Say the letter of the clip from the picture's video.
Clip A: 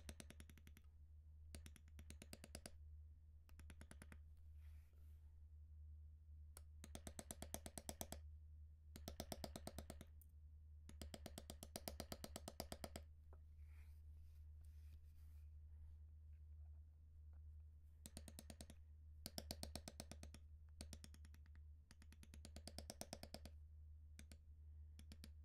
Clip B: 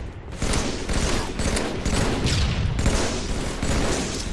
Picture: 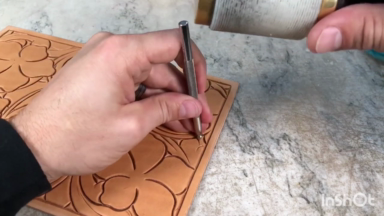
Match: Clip A